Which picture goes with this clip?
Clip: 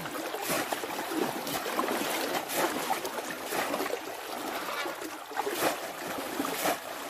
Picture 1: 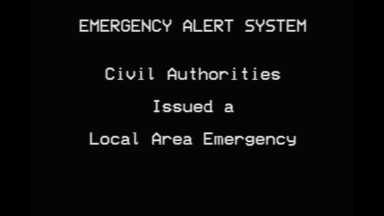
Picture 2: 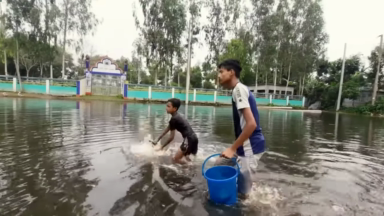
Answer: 2